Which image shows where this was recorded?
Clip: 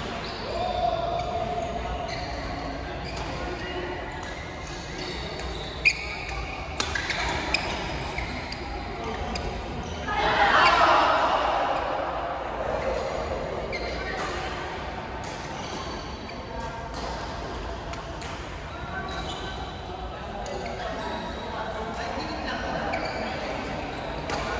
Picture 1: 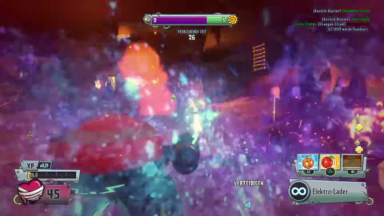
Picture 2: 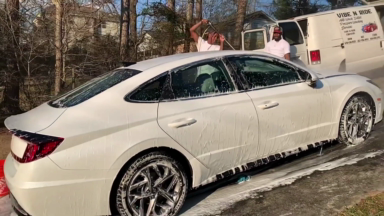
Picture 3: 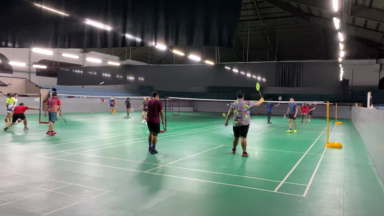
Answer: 3